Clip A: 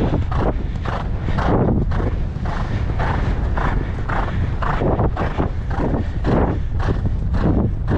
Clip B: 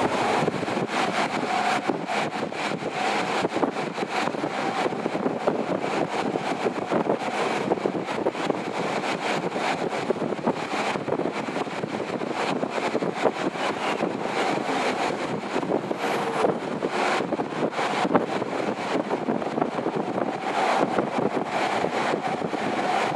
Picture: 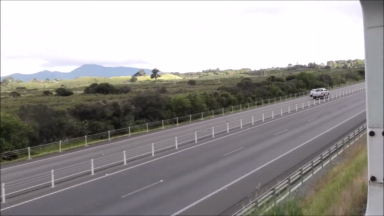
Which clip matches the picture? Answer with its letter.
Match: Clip B